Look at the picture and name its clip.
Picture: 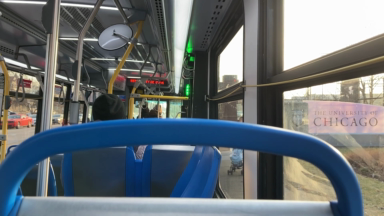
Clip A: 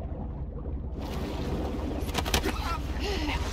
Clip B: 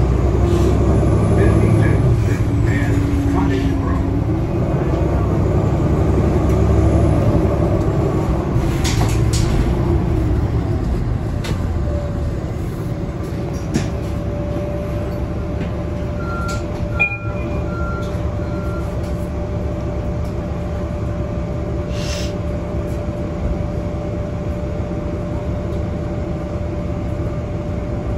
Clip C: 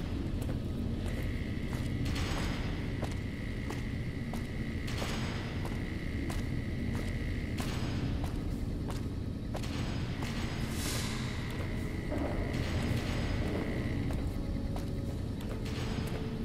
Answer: B